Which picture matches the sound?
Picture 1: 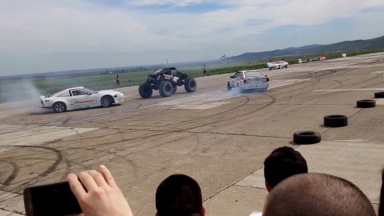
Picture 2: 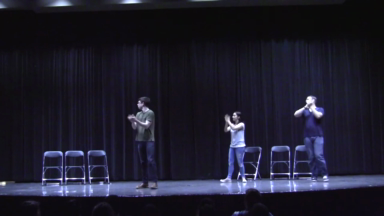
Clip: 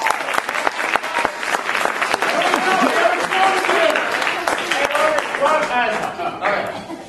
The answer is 2